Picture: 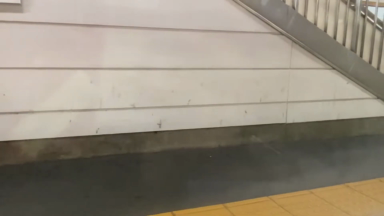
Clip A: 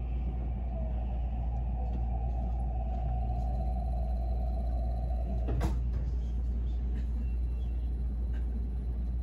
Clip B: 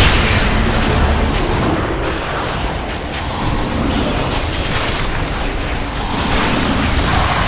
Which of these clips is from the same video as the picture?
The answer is A